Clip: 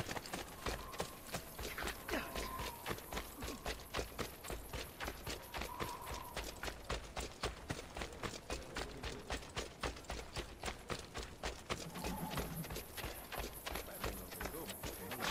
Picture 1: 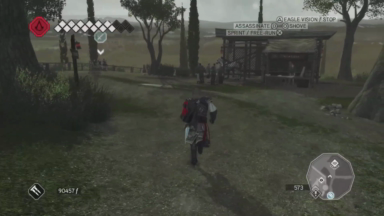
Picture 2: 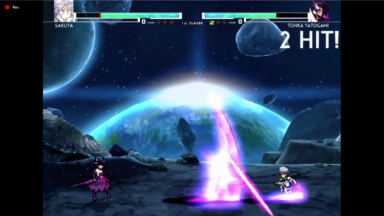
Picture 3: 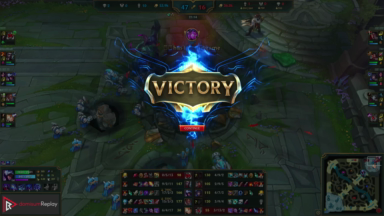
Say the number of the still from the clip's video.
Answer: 1